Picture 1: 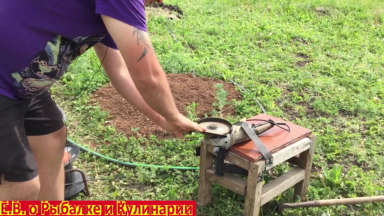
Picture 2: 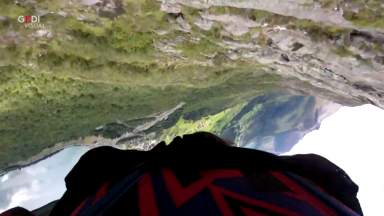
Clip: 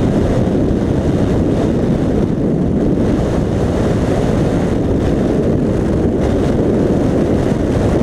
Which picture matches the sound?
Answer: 2